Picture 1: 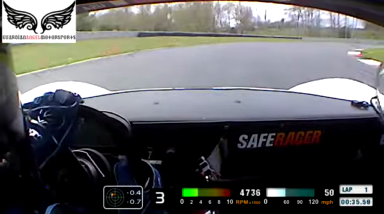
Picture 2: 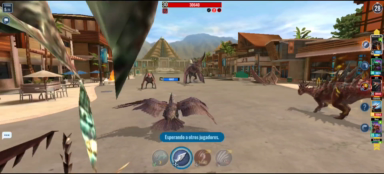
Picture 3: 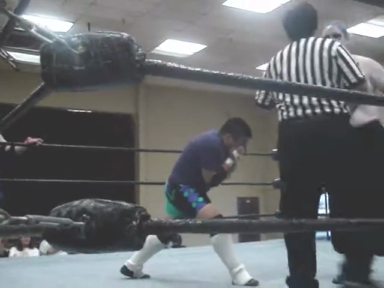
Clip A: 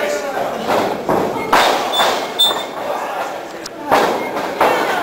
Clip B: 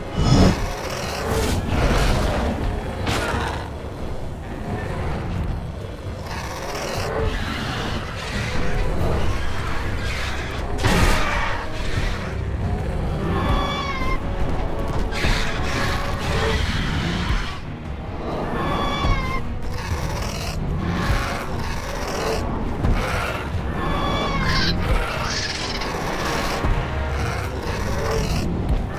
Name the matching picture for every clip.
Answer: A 3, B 2